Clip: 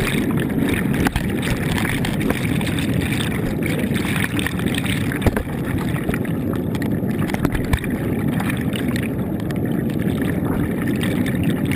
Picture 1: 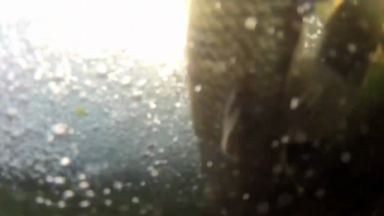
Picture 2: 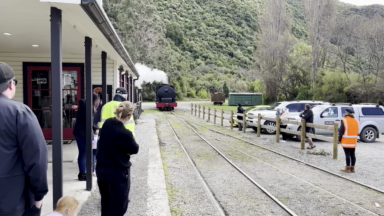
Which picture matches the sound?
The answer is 1